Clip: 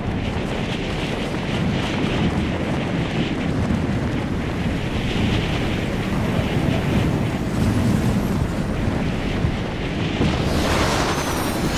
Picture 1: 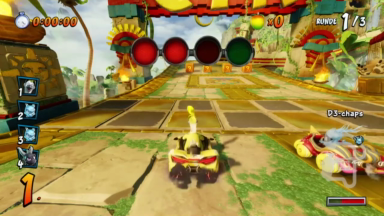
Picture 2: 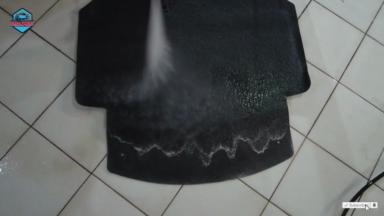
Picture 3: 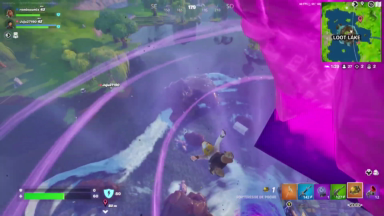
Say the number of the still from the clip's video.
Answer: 3